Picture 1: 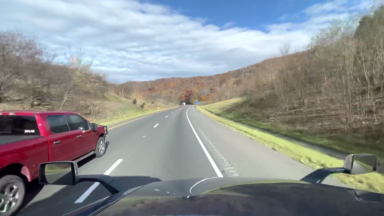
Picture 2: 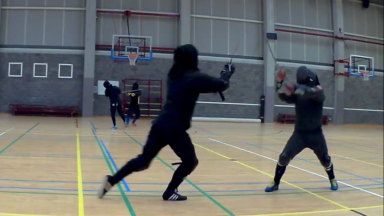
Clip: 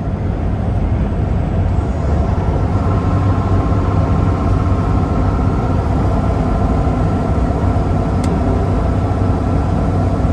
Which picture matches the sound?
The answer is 1